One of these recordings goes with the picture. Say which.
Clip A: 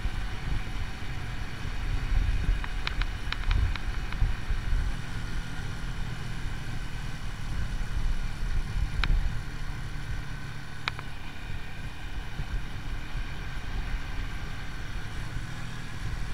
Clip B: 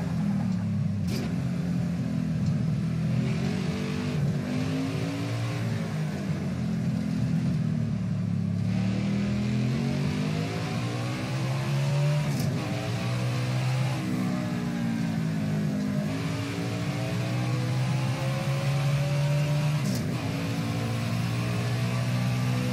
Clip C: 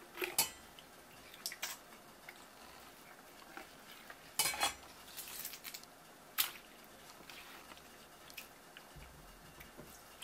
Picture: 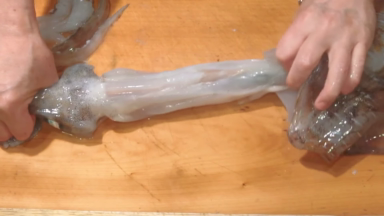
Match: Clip C